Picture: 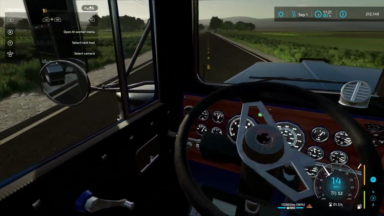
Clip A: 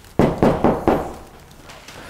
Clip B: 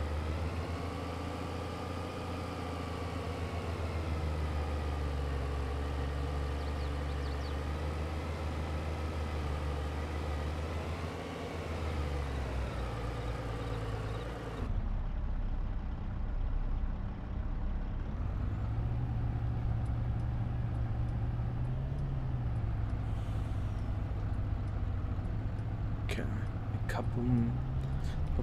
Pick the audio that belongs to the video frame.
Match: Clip B